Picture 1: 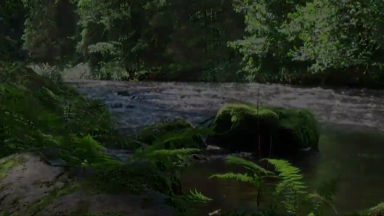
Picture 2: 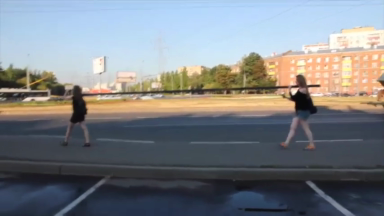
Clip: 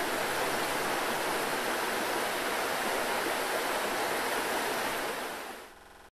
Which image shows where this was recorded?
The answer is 1